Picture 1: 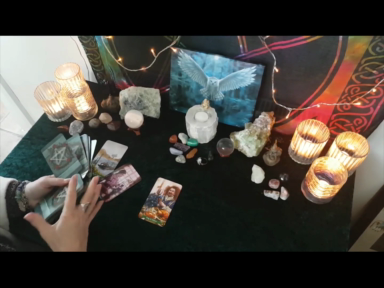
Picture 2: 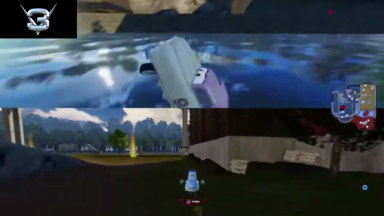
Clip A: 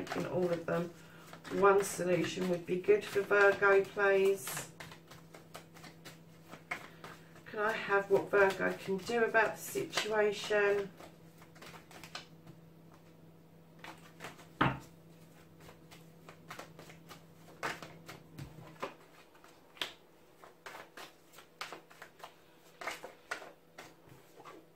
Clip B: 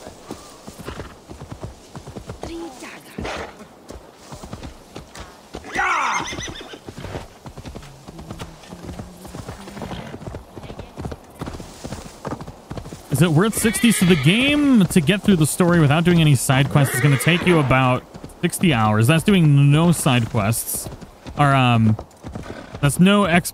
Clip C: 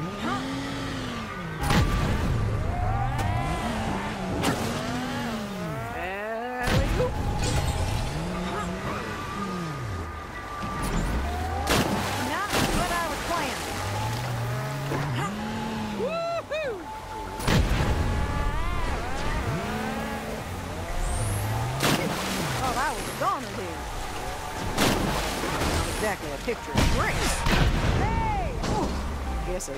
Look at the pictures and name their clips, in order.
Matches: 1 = A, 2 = C